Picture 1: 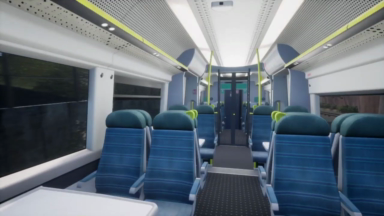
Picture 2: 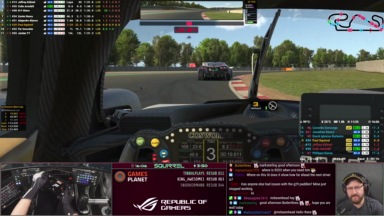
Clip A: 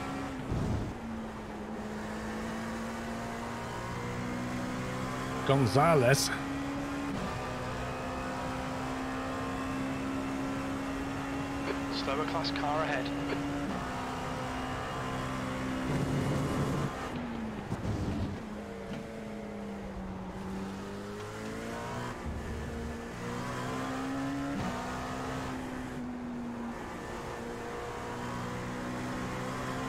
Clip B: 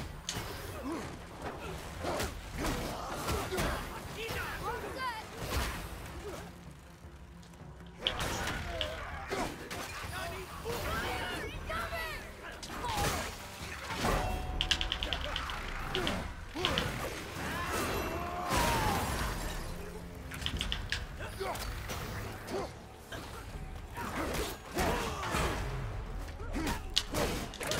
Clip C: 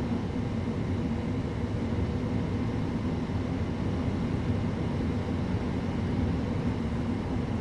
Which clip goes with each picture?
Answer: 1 C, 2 A